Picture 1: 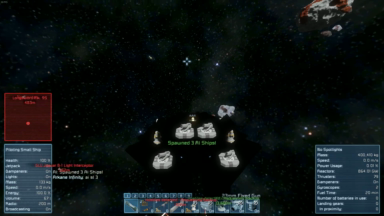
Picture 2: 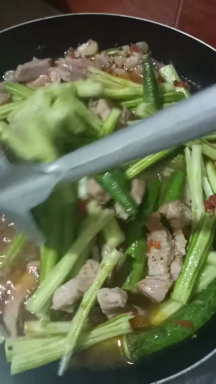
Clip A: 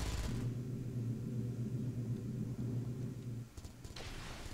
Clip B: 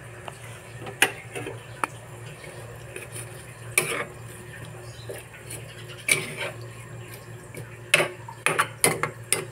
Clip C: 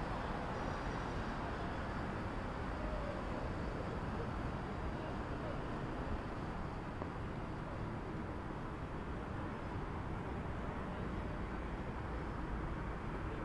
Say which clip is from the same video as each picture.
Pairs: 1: A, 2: B